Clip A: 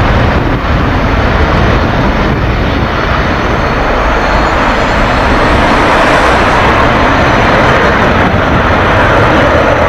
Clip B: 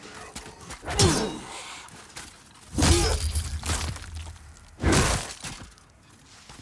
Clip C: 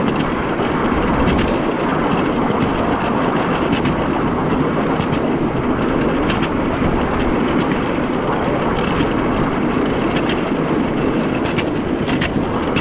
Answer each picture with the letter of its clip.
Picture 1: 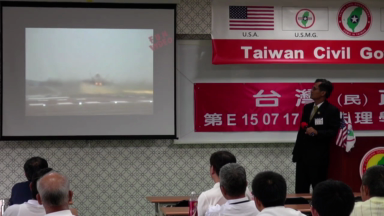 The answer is A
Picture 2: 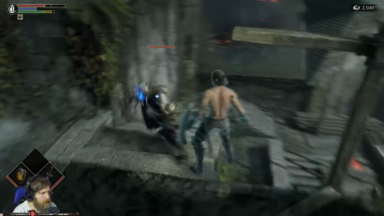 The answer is B